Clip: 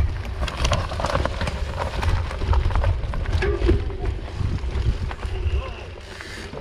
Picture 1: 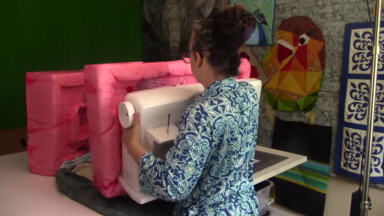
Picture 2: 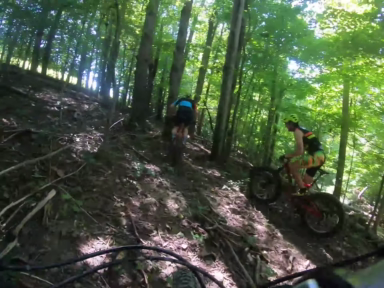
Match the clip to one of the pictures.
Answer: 2